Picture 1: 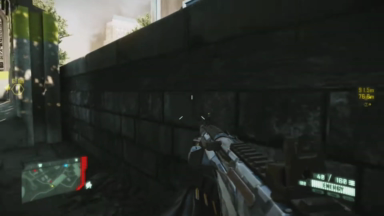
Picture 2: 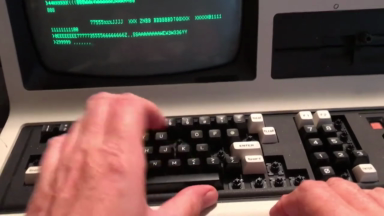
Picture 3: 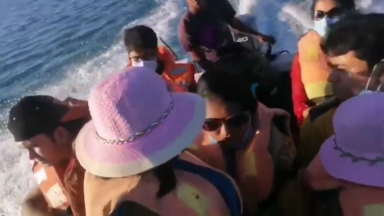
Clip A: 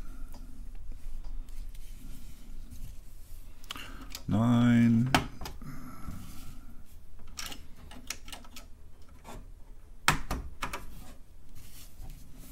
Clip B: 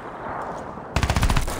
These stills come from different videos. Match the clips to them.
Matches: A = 2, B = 1